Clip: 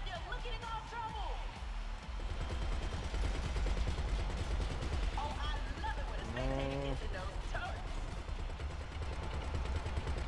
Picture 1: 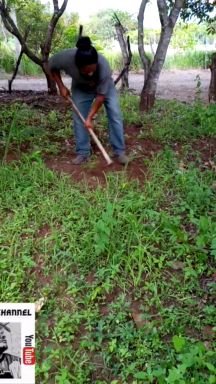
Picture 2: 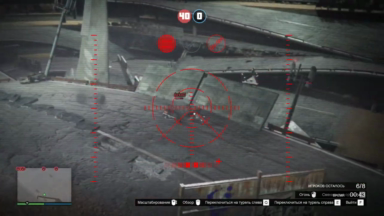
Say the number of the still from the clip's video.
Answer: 2